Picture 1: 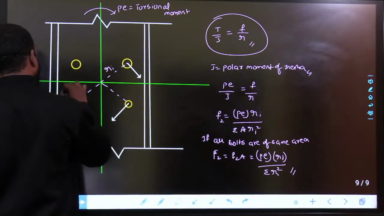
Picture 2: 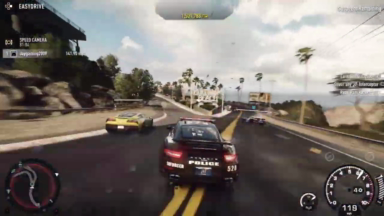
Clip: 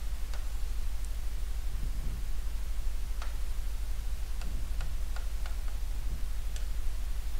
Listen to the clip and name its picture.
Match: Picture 1